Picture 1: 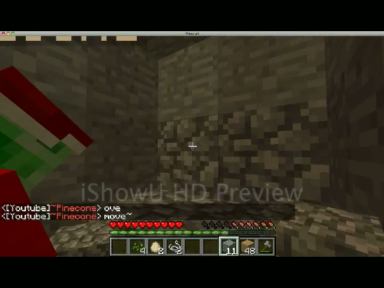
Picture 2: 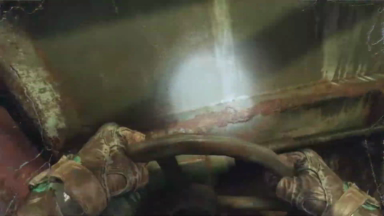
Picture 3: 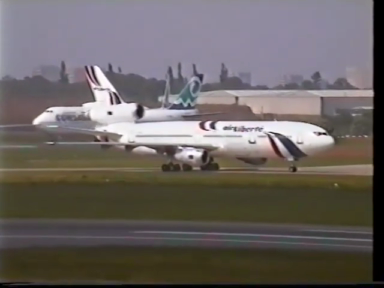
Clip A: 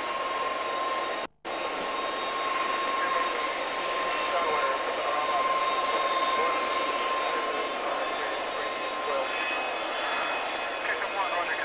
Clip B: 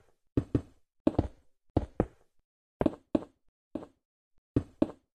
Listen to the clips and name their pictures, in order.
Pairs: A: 3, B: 1